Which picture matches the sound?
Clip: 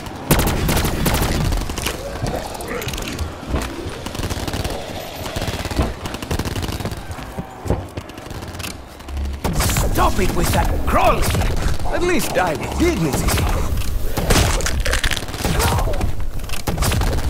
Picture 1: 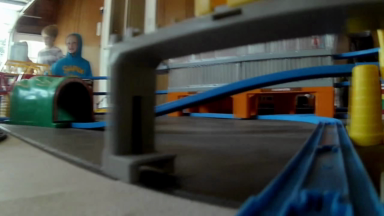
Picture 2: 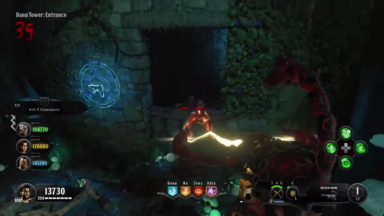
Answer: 2